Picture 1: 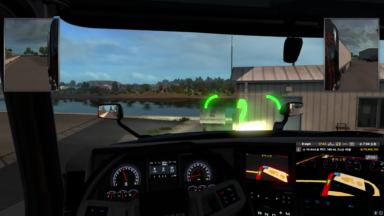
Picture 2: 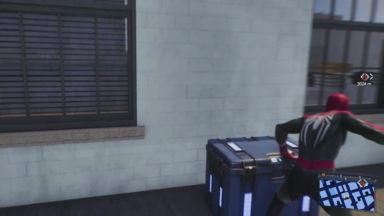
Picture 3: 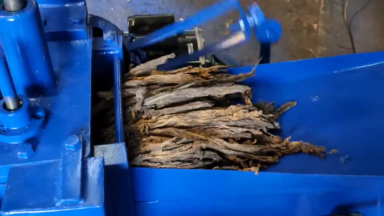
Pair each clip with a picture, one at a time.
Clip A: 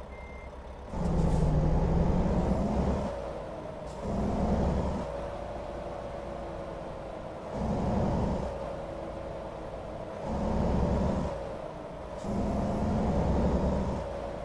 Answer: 1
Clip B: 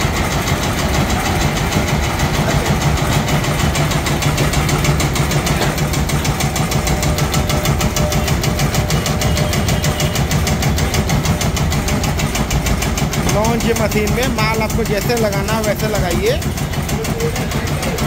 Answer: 3